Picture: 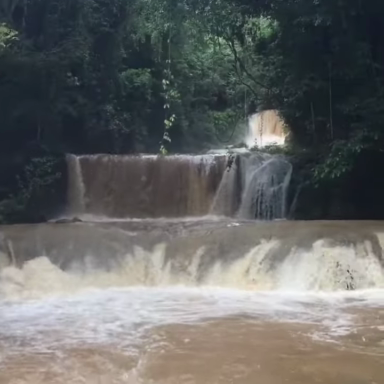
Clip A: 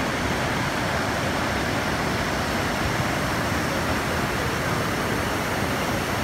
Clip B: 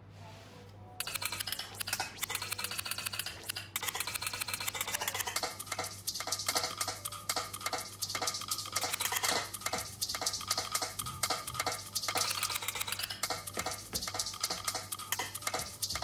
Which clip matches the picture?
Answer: A